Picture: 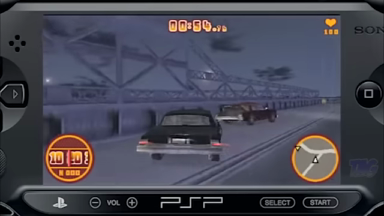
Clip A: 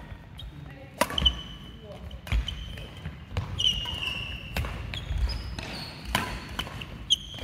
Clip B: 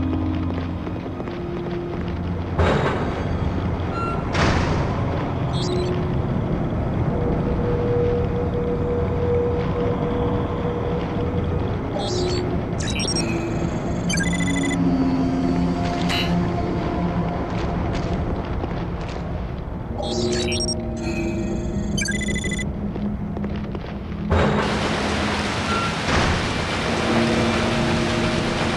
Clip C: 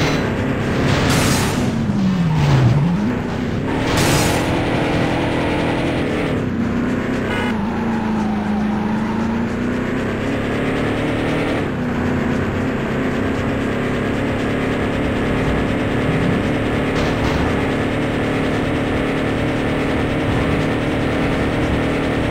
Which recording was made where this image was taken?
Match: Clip C